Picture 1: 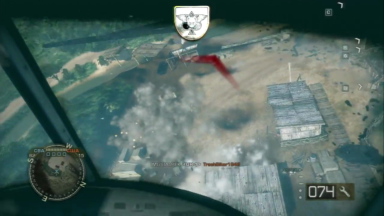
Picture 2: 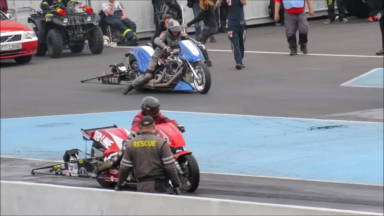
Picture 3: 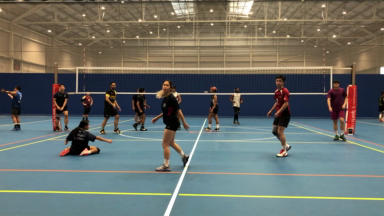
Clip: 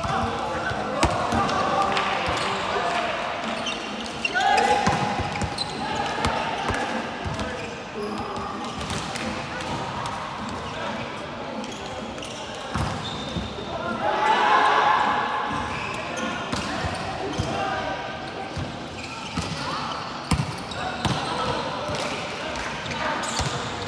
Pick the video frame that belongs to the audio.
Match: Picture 3